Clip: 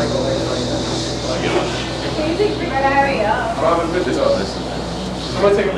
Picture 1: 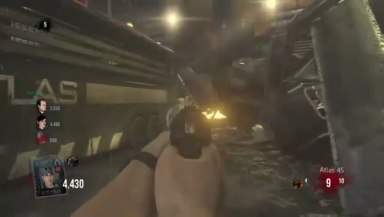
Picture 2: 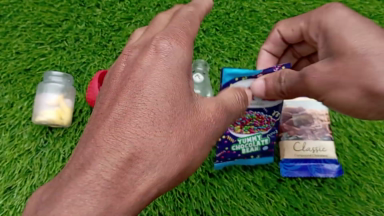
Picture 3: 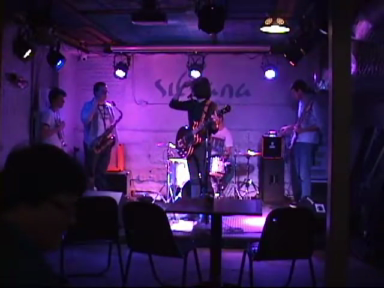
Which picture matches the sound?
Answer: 3